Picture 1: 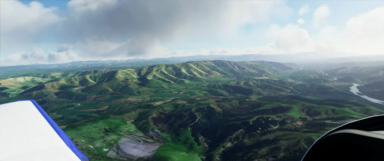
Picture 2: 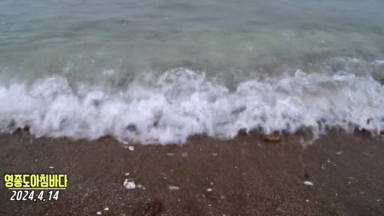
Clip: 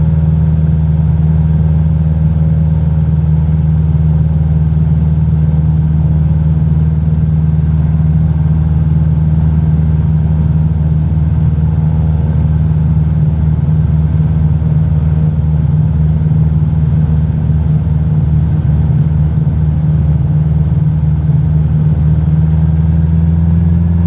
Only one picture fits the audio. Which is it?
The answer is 1